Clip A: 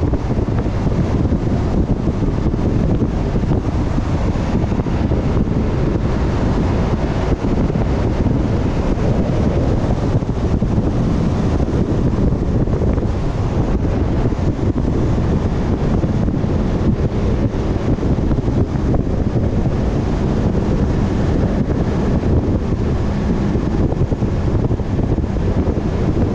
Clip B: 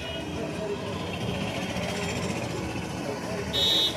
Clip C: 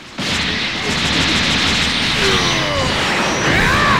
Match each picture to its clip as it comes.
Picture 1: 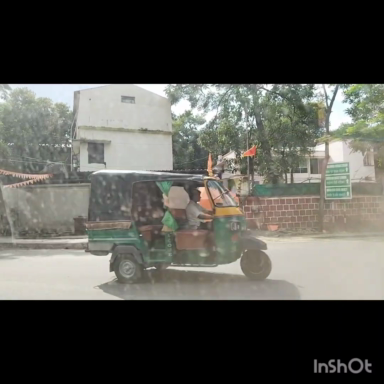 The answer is B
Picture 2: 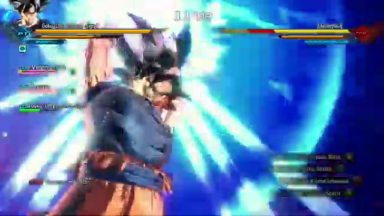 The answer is C